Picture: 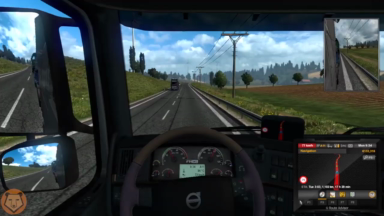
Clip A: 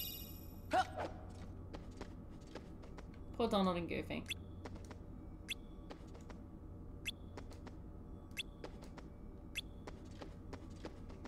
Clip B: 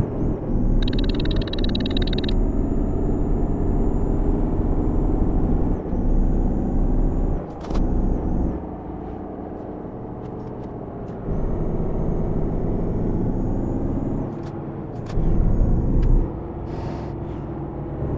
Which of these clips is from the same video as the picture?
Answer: B